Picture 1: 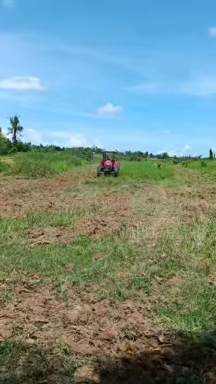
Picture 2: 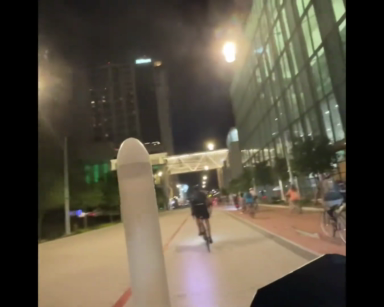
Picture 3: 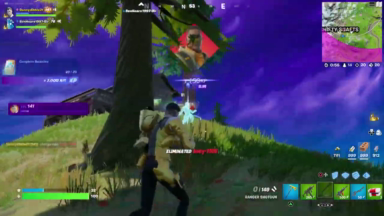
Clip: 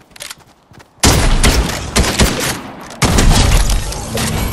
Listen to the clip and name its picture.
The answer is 3